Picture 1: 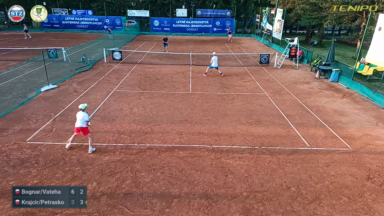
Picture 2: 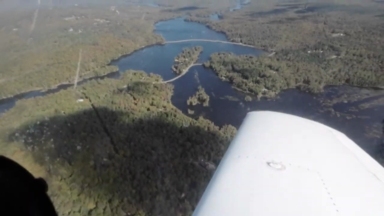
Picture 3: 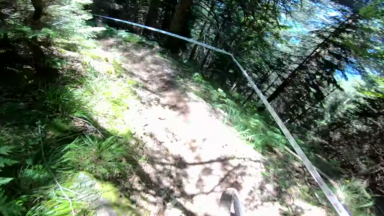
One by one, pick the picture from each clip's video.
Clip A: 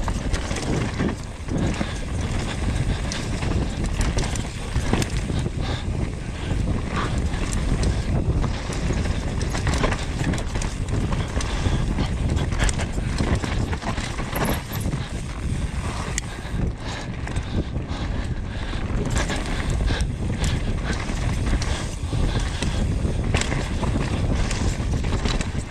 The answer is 3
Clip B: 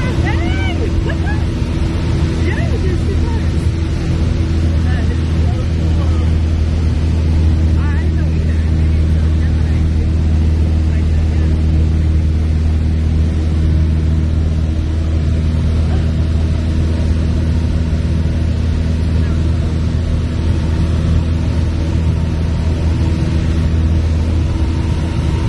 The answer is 2